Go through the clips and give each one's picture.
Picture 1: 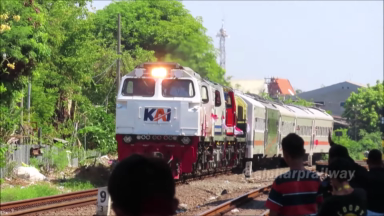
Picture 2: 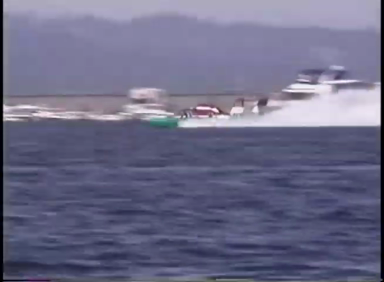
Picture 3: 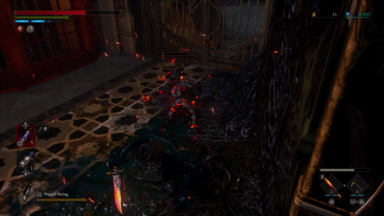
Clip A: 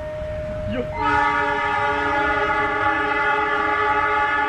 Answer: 1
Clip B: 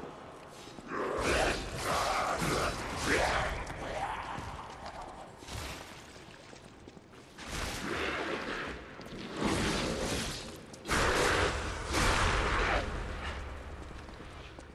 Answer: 3